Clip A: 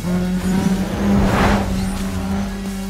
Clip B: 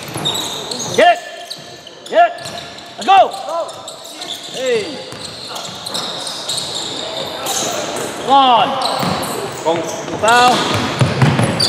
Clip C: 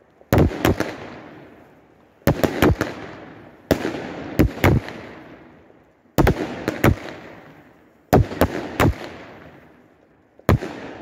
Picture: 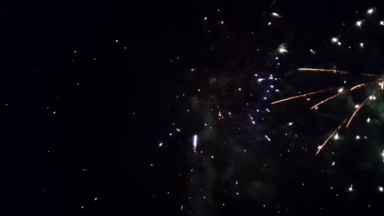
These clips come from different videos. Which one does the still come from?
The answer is C